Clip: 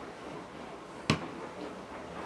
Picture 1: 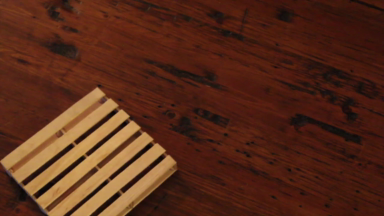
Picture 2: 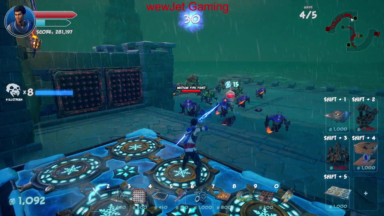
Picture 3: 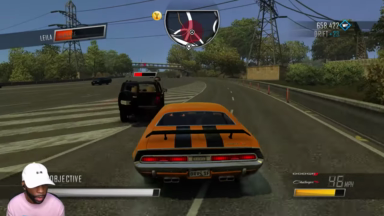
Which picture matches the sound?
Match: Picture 1